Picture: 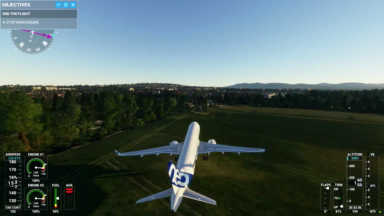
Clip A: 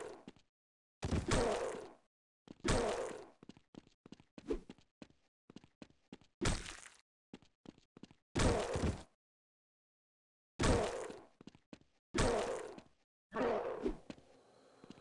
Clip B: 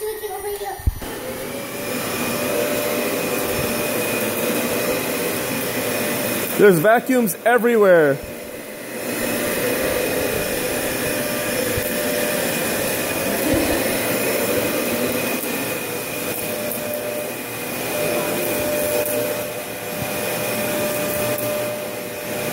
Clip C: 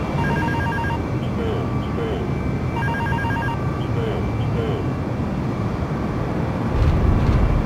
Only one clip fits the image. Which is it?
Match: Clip C